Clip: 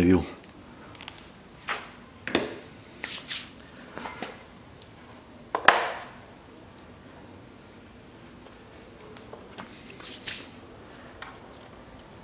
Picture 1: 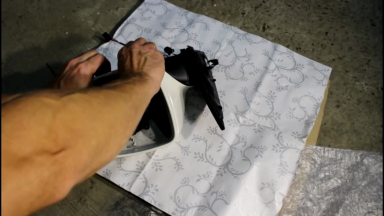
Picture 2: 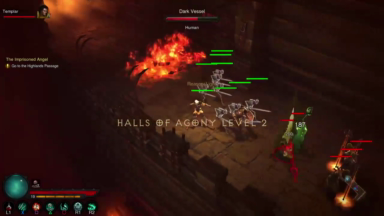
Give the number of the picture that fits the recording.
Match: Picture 1